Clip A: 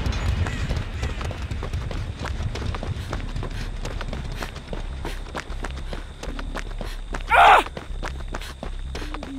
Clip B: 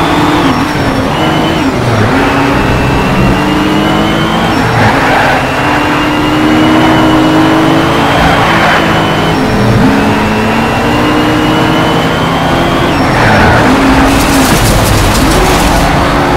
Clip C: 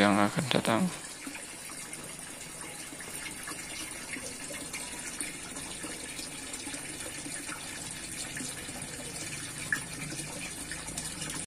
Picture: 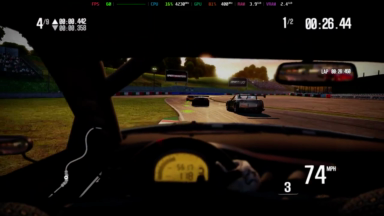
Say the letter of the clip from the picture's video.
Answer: B